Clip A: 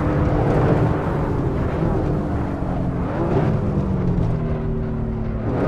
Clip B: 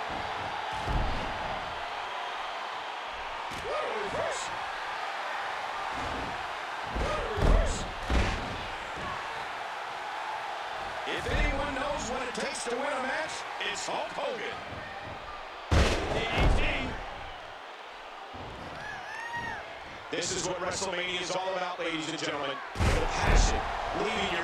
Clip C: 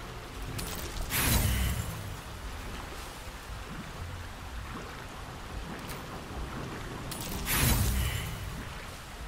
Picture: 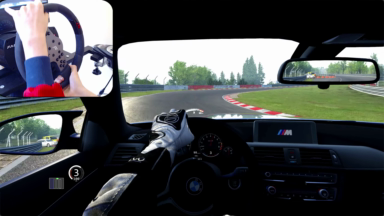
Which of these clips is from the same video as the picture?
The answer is A